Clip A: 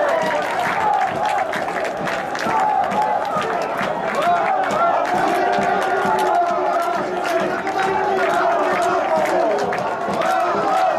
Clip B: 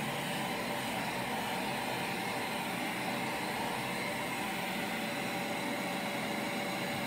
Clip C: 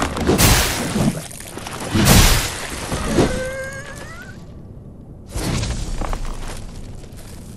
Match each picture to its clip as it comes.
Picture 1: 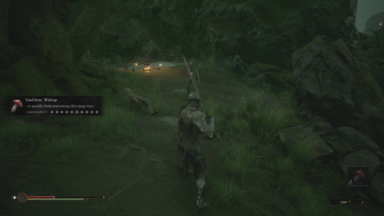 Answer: C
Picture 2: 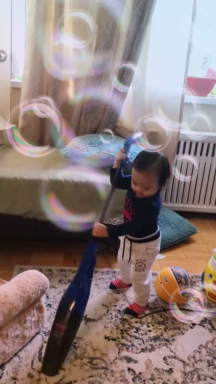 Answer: B